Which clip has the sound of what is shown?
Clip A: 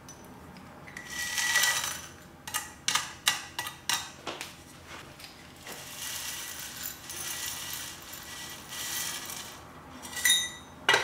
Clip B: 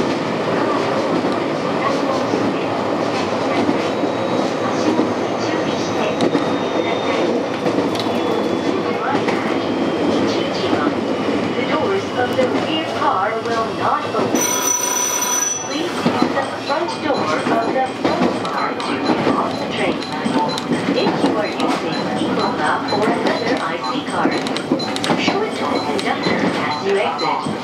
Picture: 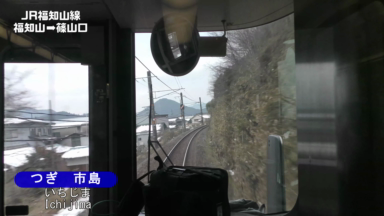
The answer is B